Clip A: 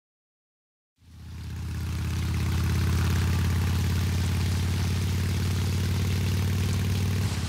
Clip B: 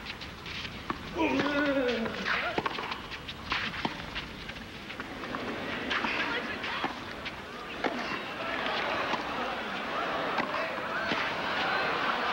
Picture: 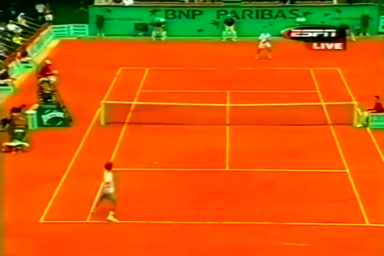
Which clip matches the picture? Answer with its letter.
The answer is B